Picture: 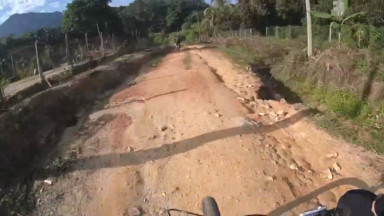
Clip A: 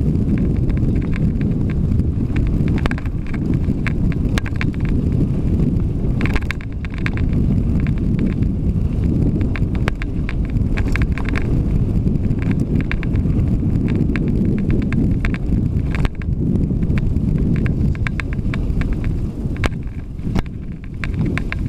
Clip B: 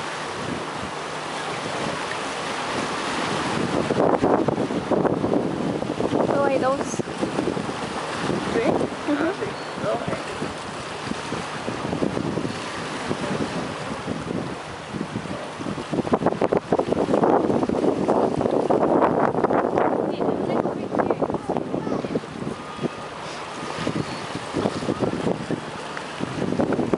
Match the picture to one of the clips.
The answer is A